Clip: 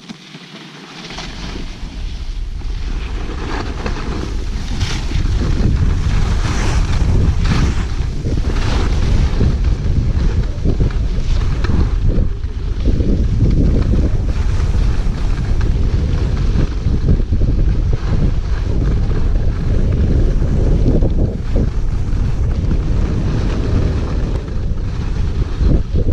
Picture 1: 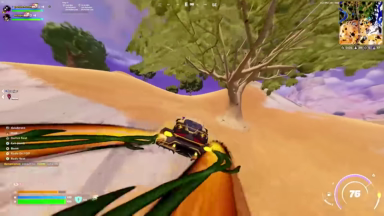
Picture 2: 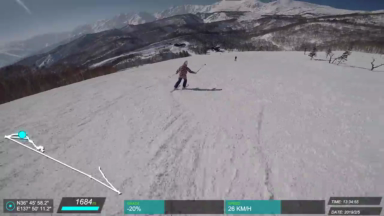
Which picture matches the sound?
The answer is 2